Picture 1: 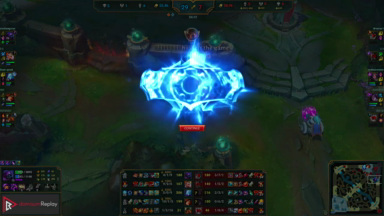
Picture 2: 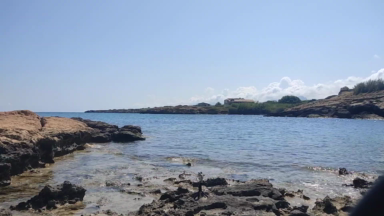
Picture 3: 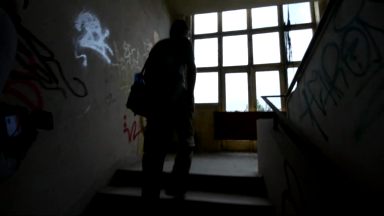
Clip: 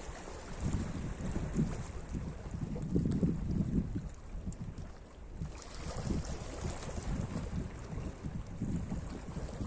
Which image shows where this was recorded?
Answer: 2